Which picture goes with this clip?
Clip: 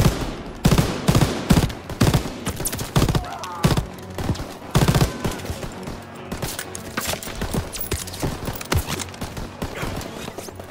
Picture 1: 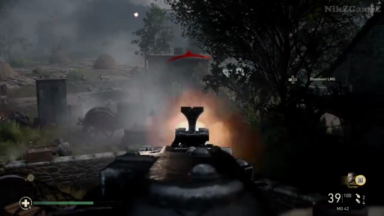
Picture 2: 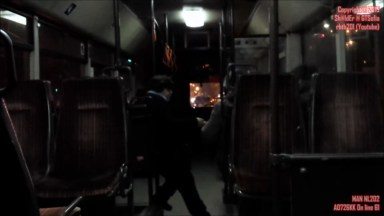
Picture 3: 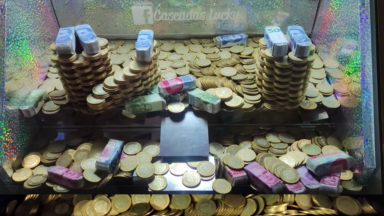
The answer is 1